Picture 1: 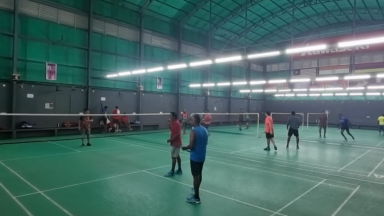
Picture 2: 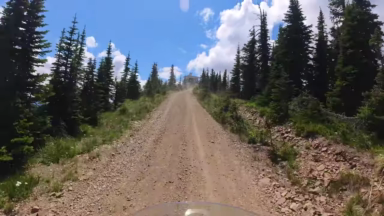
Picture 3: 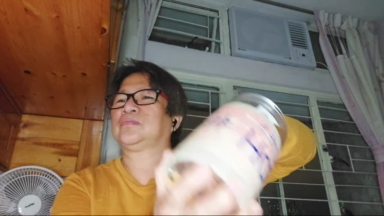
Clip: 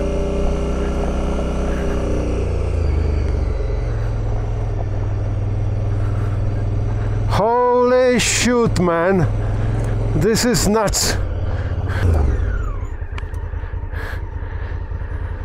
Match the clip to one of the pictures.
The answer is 2